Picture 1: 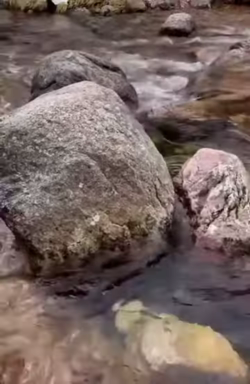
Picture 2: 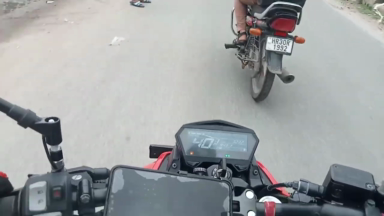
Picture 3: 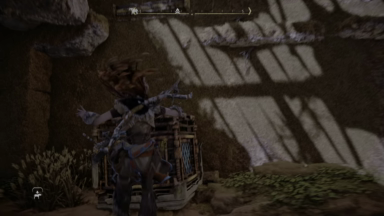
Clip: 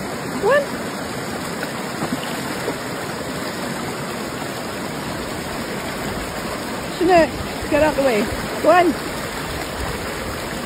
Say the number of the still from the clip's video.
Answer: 1